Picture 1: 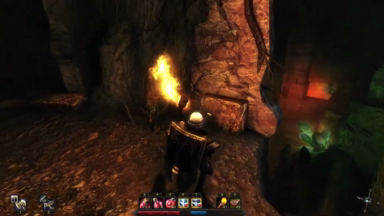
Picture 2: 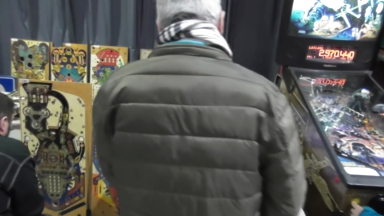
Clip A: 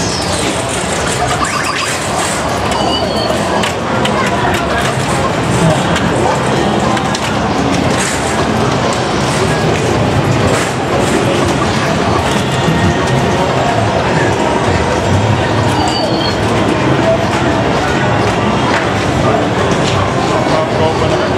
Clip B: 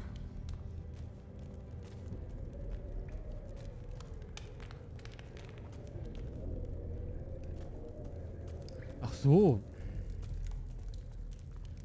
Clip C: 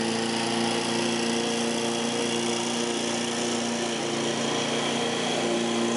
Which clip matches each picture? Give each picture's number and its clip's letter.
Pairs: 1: B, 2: A